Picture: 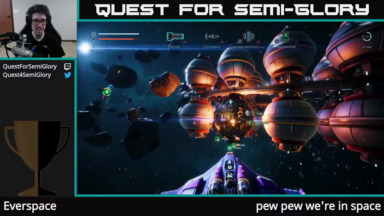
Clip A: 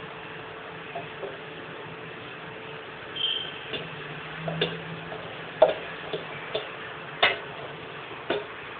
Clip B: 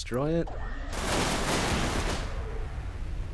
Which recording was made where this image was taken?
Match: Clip B